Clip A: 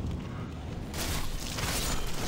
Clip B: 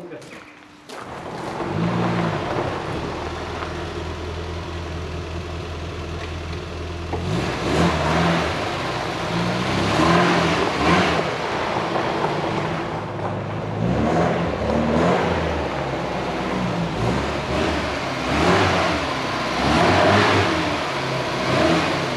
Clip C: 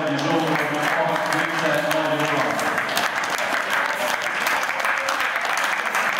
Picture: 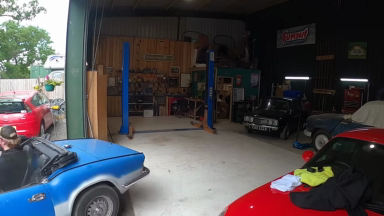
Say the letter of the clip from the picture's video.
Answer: B